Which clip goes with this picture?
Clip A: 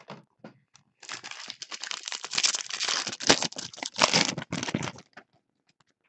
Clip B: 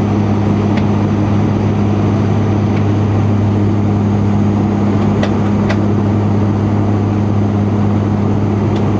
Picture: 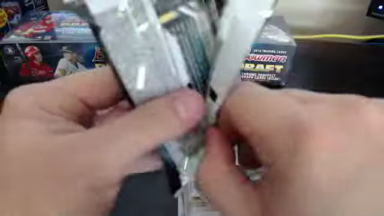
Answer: A